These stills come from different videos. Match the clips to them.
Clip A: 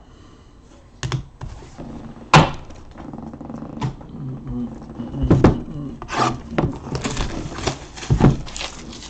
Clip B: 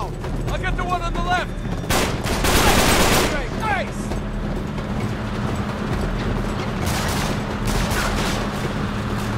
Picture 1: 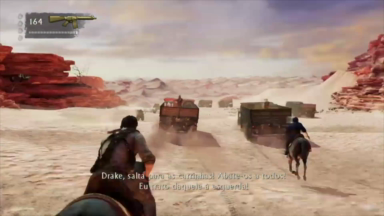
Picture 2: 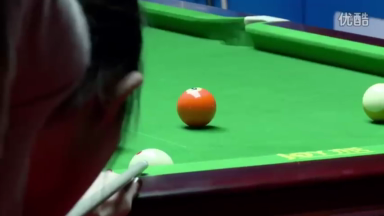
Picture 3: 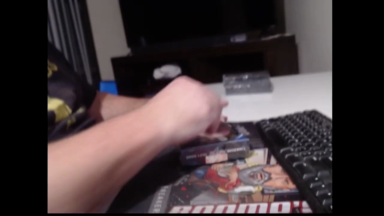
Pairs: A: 3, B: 1